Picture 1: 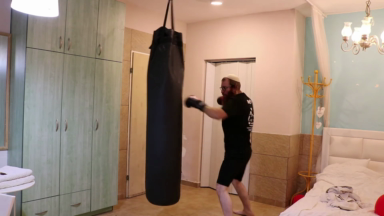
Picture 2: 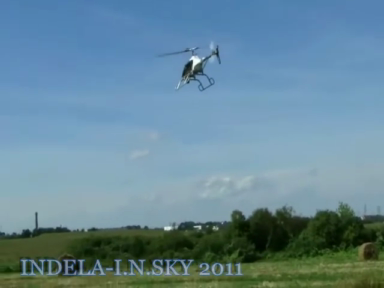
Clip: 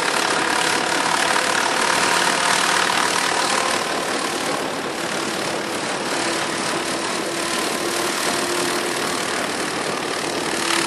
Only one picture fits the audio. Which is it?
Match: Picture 2